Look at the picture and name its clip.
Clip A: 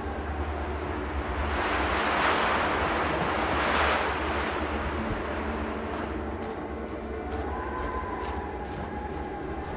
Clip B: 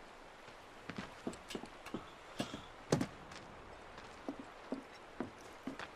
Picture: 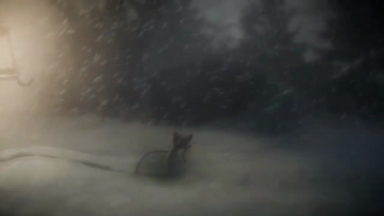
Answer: A